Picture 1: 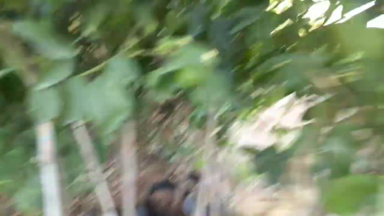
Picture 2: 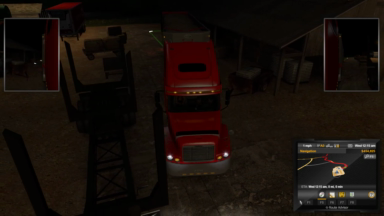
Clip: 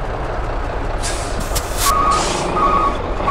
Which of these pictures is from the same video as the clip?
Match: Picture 2